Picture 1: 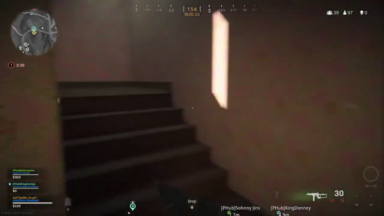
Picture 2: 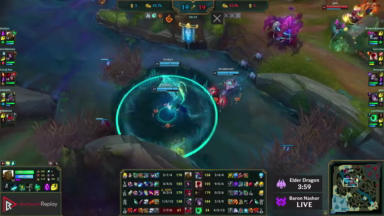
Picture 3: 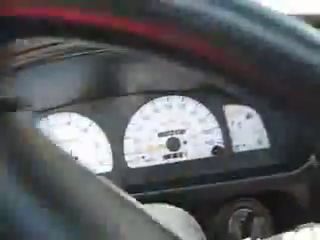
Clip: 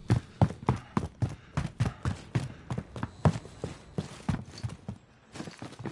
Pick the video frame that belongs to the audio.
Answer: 1